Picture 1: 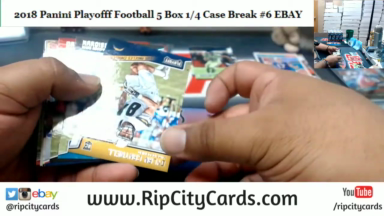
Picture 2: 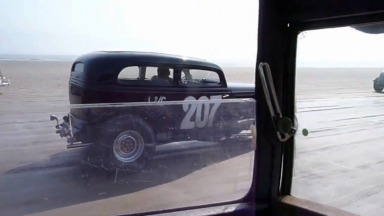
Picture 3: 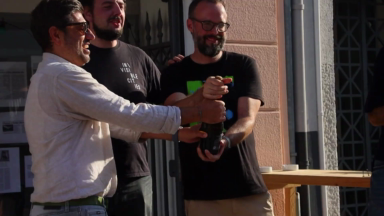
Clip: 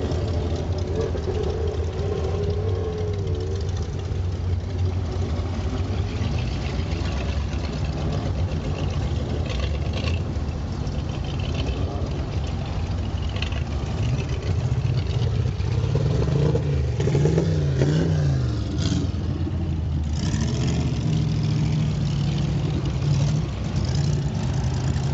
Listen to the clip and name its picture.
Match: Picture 2